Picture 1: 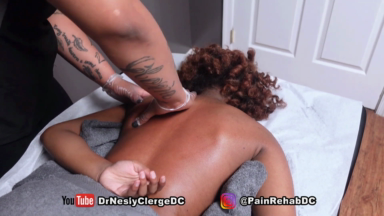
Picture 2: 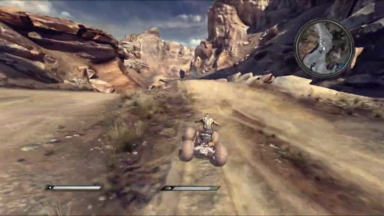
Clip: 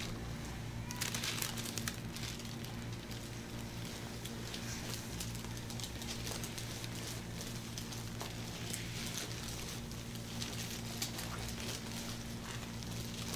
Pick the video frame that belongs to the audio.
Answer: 1